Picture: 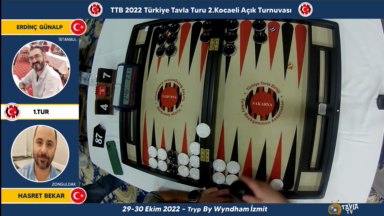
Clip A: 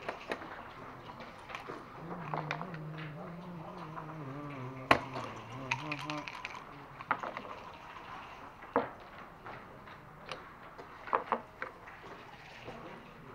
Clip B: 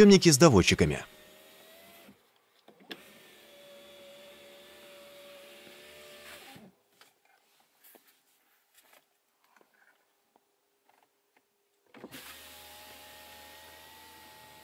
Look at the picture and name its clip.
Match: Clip A